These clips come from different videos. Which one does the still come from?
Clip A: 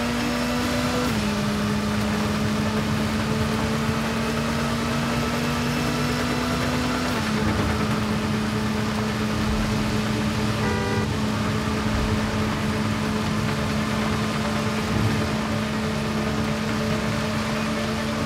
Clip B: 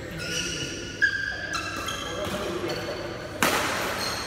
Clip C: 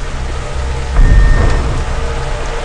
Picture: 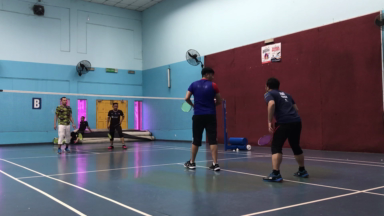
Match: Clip B